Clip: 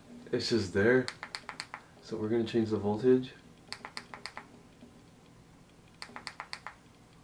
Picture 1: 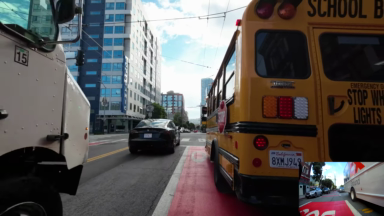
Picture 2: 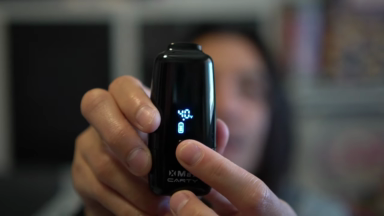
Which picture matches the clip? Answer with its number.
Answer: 2